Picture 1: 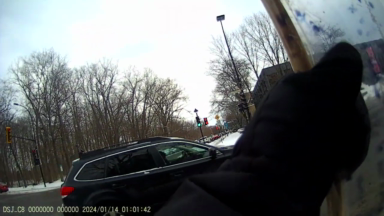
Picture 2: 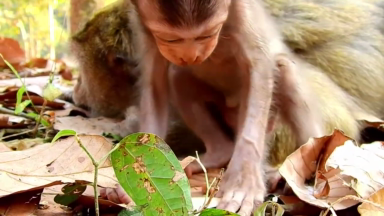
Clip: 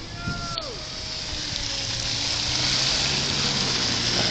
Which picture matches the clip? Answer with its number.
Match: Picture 1